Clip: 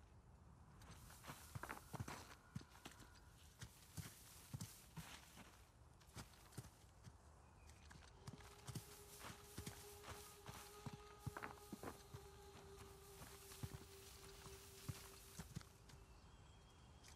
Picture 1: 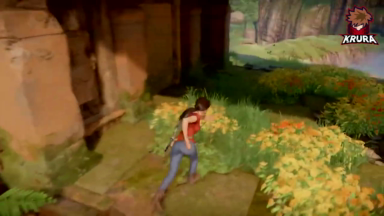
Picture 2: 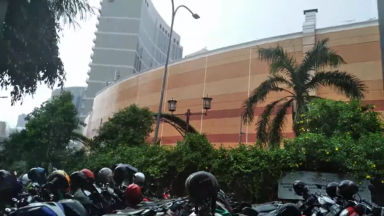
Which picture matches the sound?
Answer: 1